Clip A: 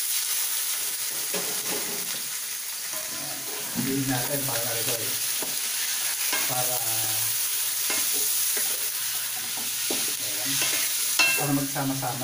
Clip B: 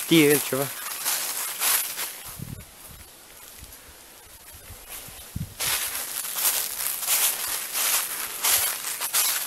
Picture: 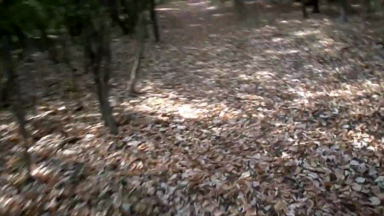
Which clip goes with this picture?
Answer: B